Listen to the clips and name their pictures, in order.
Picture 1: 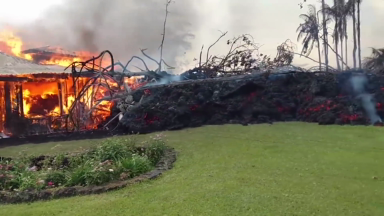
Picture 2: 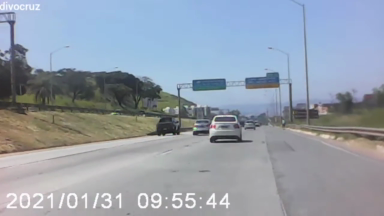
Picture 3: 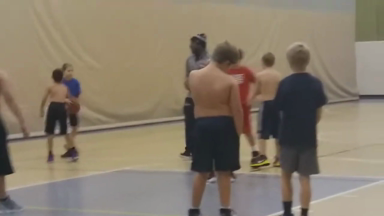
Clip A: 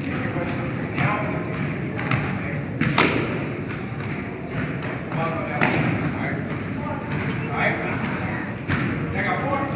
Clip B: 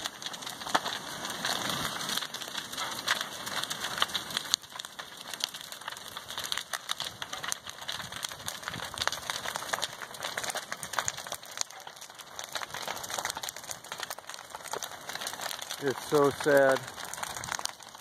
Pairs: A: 3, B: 1